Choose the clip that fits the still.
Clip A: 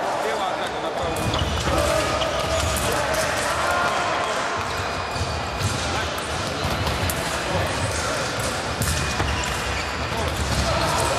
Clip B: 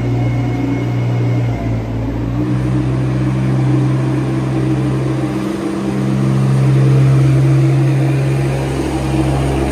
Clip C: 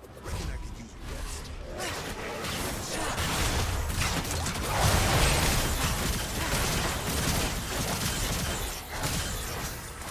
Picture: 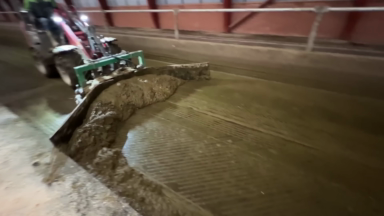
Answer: B